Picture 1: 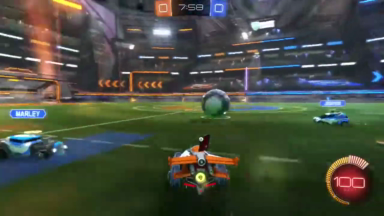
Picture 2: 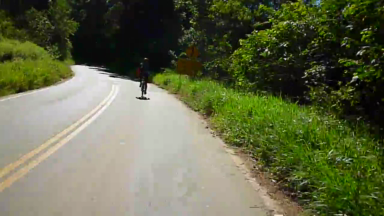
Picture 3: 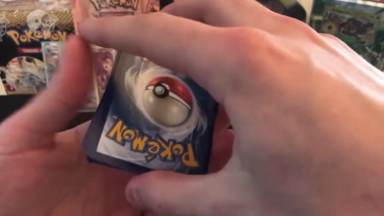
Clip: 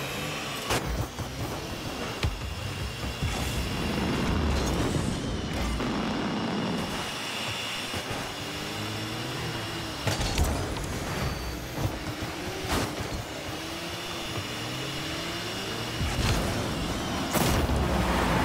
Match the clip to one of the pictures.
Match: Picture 1